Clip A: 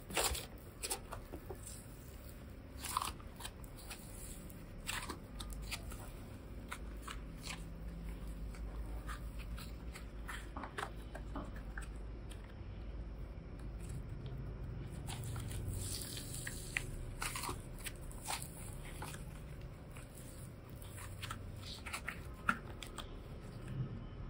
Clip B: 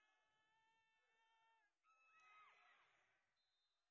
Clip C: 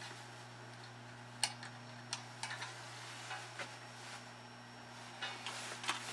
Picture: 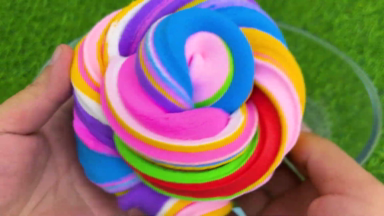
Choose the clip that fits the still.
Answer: A